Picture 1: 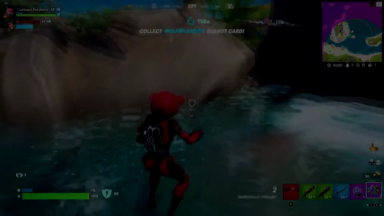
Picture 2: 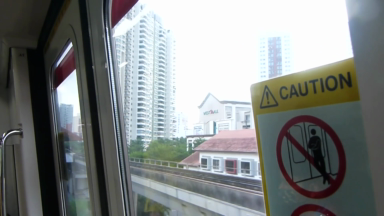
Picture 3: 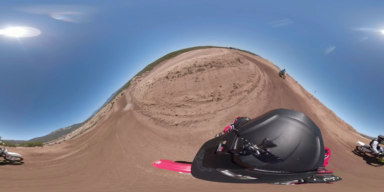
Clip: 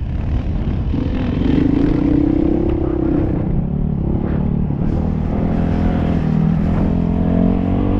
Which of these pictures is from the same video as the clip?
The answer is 3